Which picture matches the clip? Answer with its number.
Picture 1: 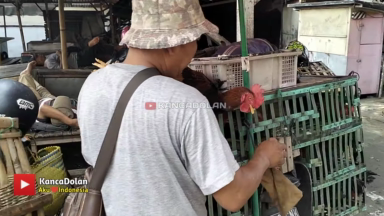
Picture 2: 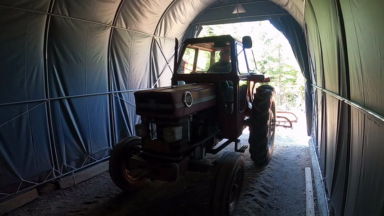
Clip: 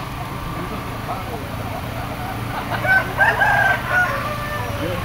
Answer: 1